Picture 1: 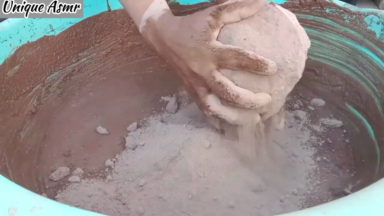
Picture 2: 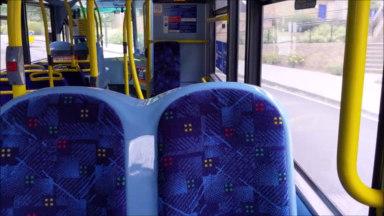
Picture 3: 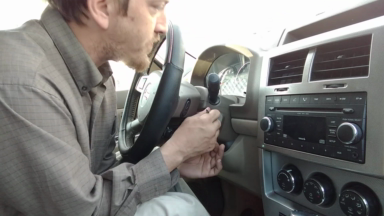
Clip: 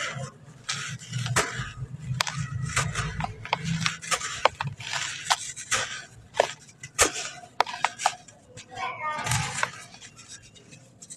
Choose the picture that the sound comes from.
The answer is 1